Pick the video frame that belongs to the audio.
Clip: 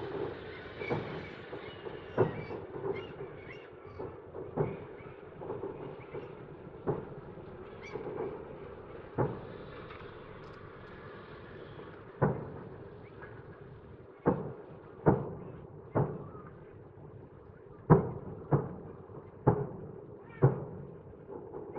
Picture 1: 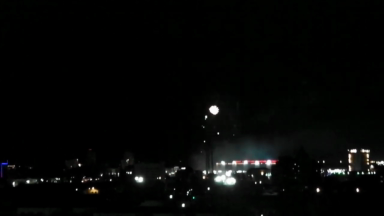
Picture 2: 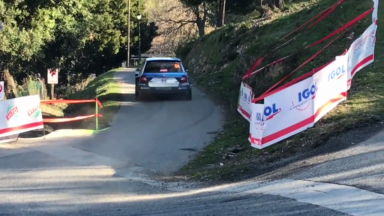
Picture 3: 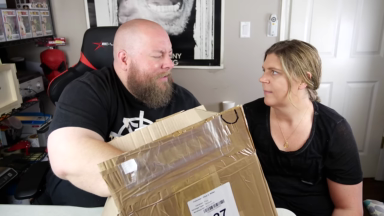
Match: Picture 1